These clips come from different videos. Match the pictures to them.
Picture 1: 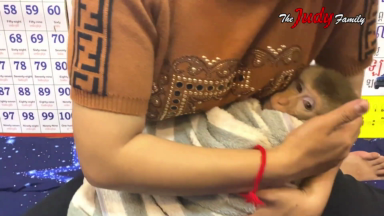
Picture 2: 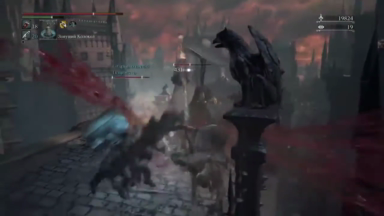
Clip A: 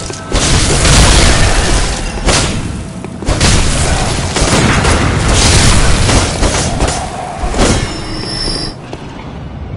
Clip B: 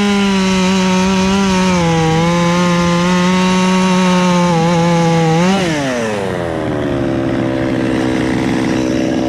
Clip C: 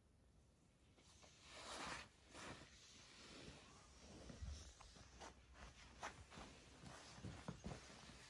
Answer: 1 C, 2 A